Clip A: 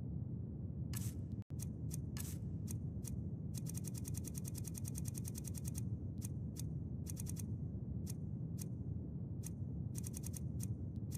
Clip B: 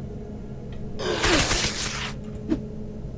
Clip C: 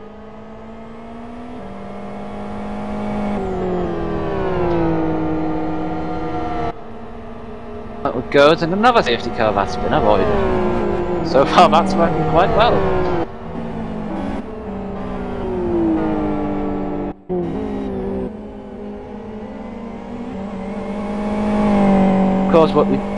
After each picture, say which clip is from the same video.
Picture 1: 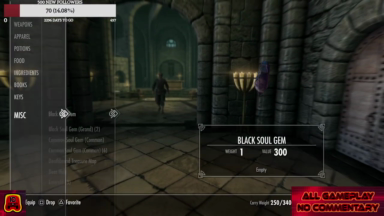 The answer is A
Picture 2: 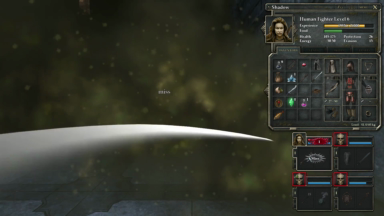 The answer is B